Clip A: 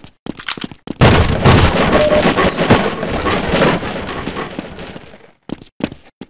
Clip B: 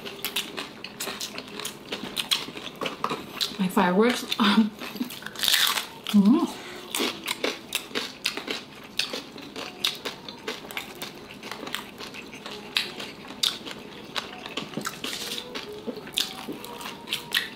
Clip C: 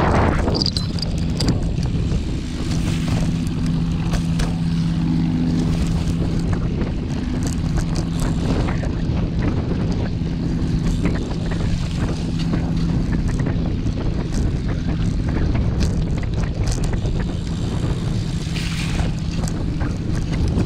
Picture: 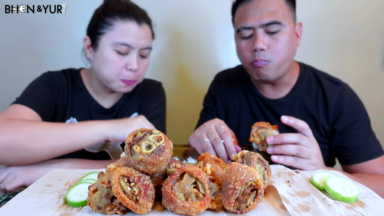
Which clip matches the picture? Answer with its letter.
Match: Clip B